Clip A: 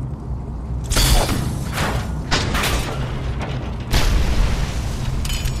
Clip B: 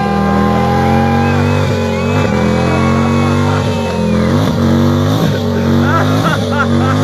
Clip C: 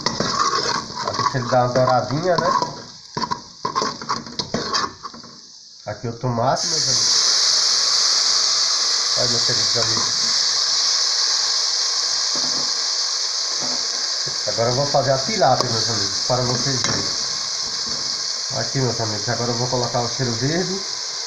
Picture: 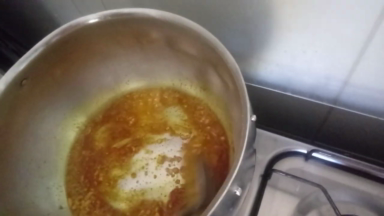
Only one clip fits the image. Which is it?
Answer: C